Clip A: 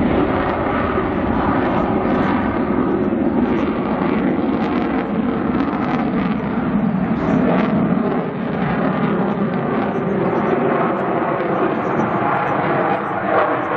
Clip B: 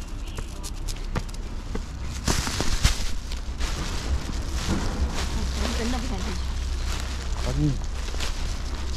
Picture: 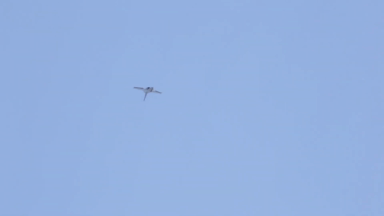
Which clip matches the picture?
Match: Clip A